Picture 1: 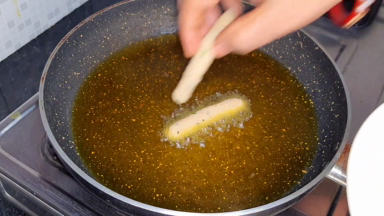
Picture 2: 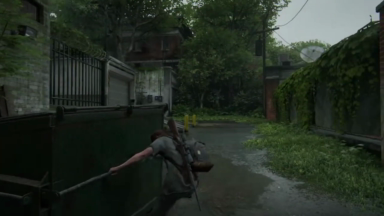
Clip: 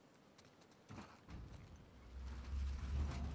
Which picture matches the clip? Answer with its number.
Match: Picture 2